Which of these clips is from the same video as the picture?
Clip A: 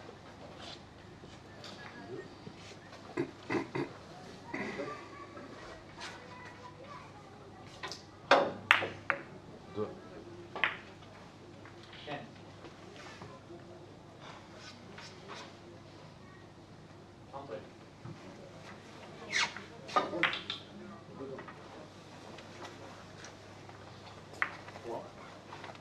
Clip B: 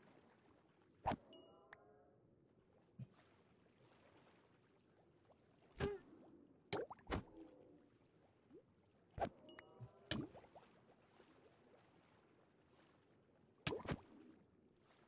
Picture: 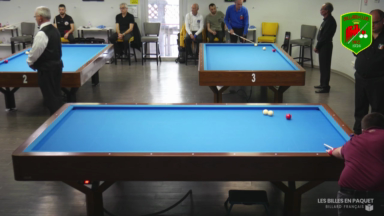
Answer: A